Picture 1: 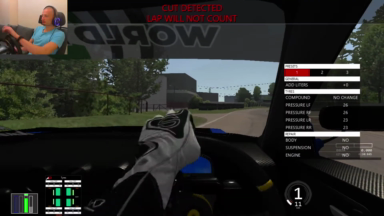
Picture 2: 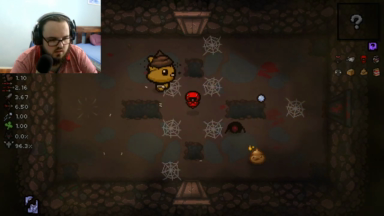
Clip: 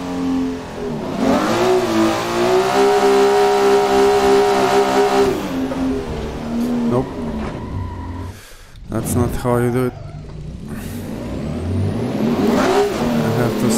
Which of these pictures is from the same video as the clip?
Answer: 1